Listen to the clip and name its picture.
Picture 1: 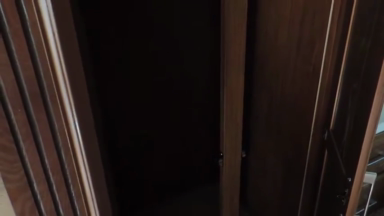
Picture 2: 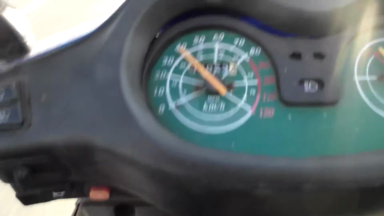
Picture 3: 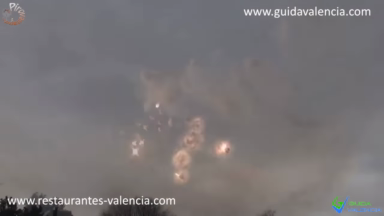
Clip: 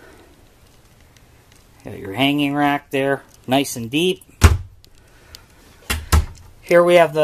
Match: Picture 1